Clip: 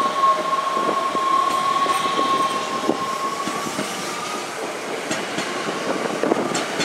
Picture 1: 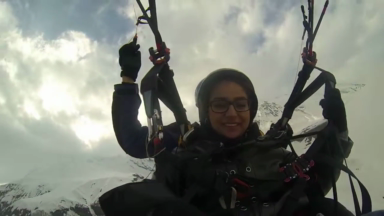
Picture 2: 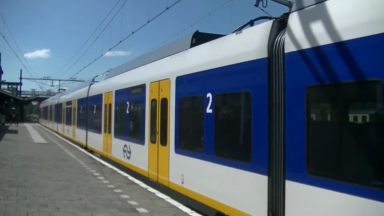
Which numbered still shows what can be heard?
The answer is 2